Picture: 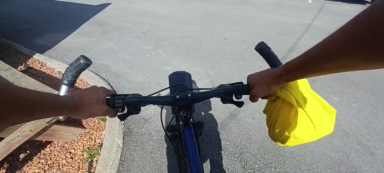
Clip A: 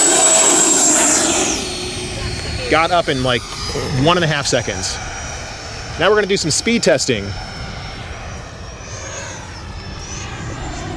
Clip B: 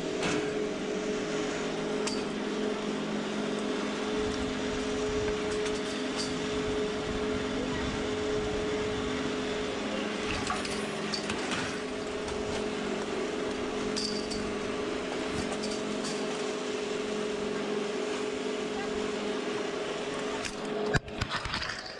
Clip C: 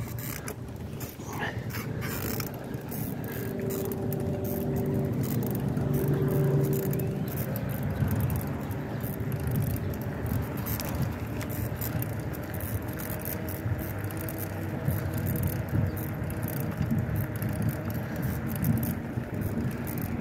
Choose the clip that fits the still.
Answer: C